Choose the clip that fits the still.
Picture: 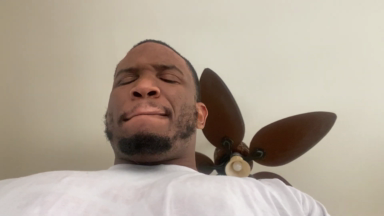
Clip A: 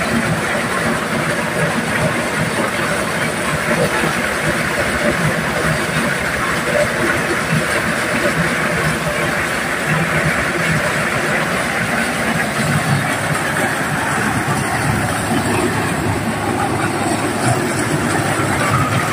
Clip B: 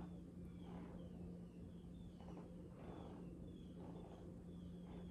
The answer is B